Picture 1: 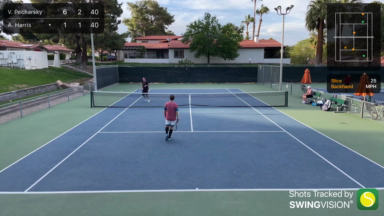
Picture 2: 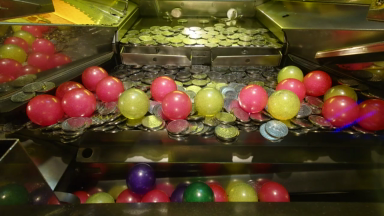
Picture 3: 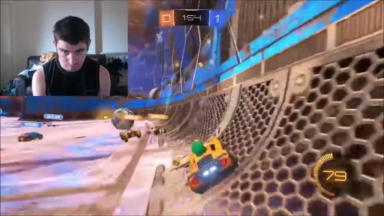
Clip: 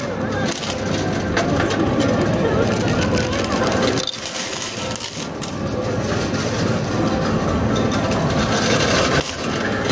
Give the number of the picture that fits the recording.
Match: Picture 2